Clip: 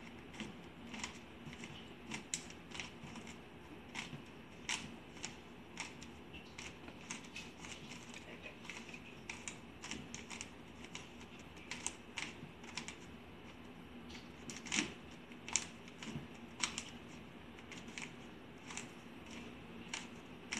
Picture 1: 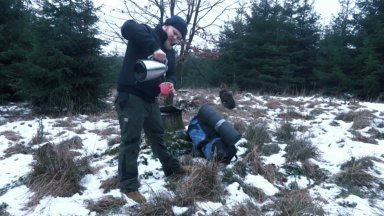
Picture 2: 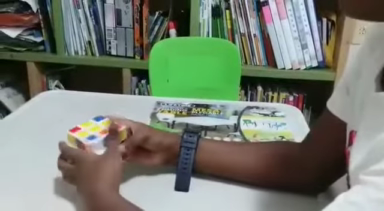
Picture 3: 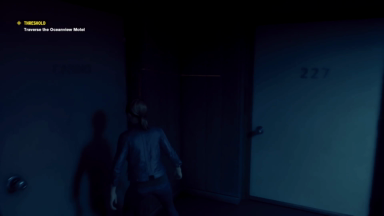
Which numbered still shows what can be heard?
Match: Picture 2